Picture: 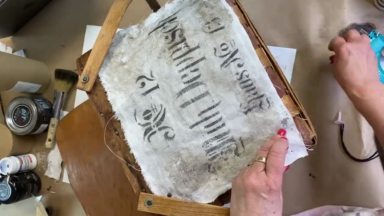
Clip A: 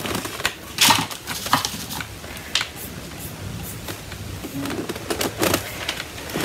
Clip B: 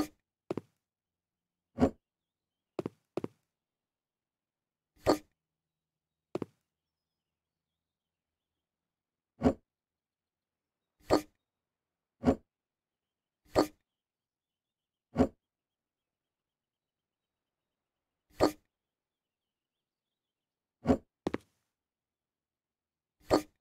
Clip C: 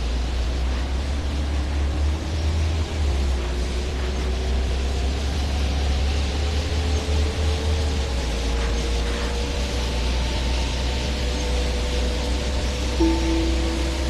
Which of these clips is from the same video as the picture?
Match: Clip A